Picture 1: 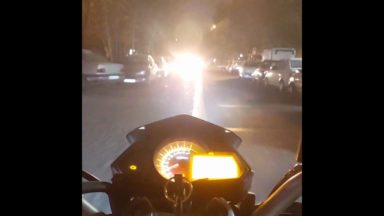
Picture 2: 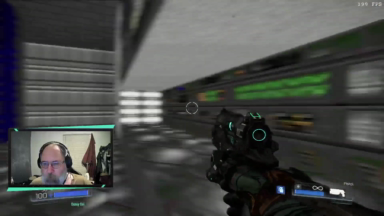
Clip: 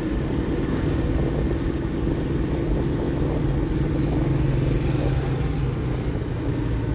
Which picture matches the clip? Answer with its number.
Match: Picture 1